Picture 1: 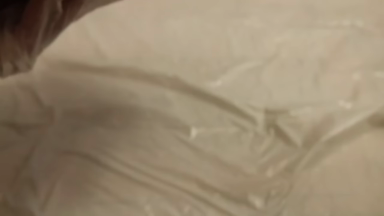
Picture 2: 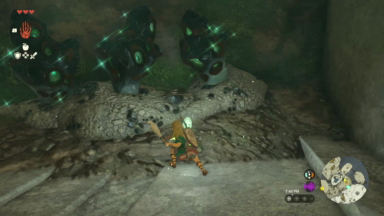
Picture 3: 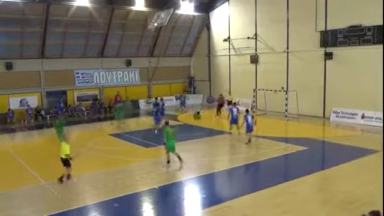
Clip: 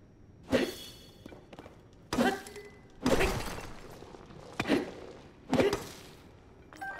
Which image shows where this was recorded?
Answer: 2